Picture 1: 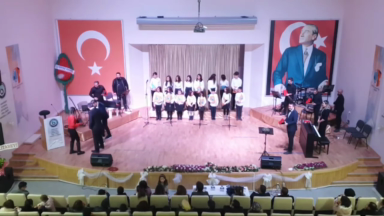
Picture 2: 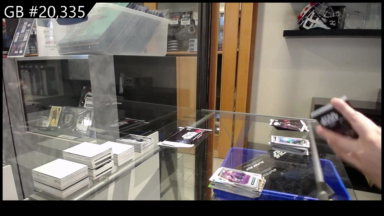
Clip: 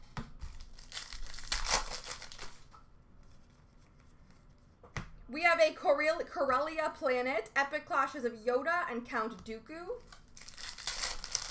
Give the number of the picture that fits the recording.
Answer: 2